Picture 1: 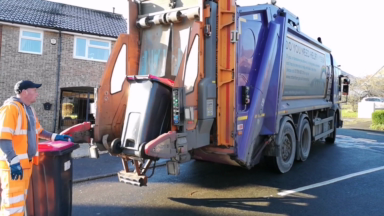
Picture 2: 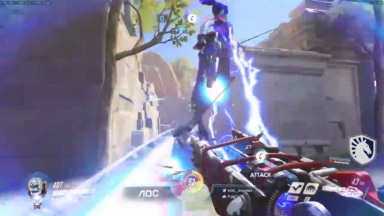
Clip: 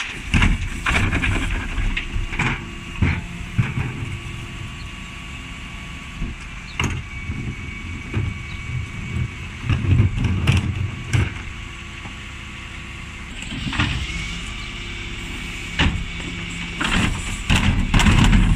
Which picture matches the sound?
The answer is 1